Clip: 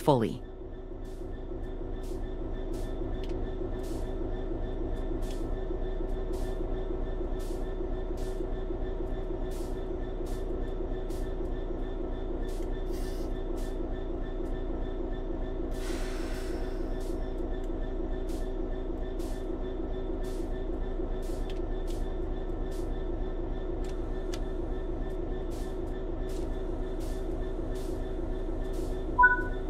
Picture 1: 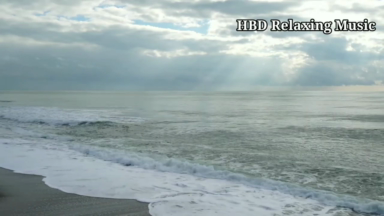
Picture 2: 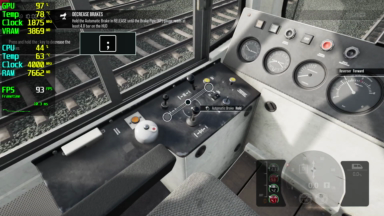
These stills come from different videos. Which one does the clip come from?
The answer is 2